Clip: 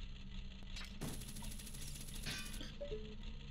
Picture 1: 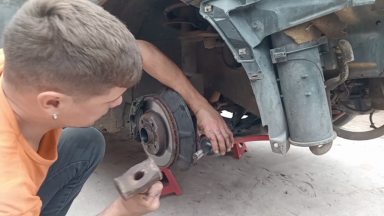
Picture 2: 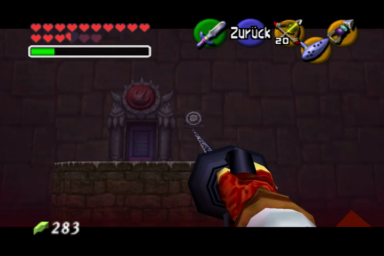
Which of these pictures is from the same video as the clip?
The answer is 2